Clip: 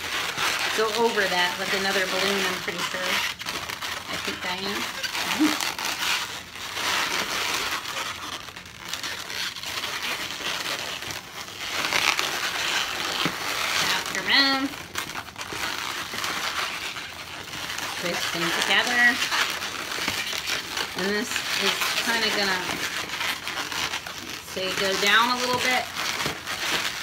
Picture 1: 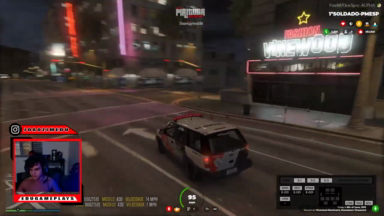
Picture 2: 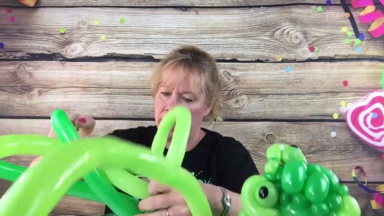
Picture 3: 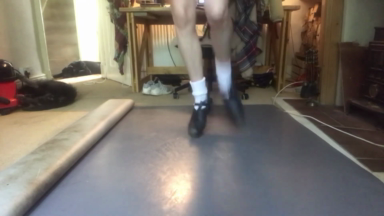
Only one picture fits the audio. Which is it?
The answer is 2